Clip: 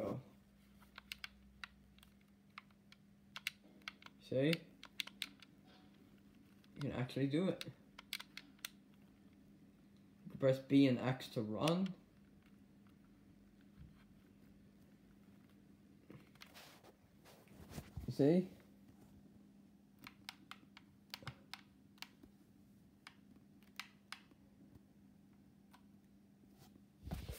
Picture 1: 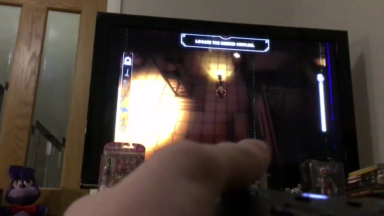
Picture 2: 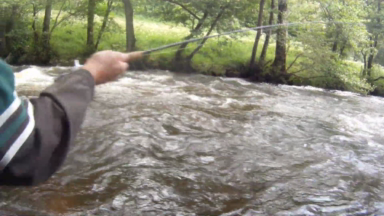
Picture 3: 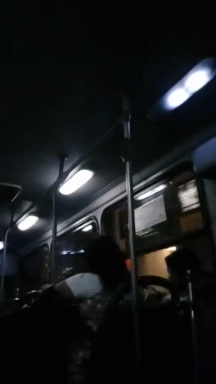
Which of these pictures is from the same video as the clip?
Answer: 1